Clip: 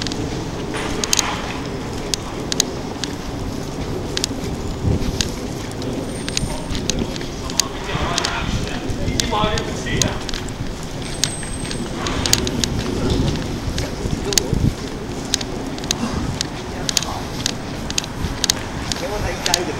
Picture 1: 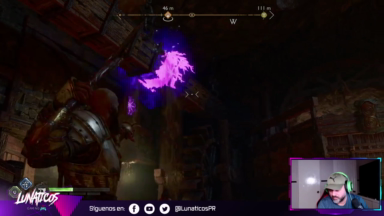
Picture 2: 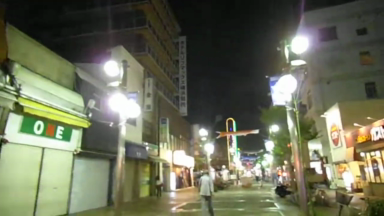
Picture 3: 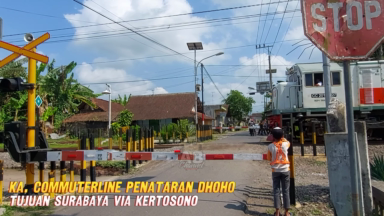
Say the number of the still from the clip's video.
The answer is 2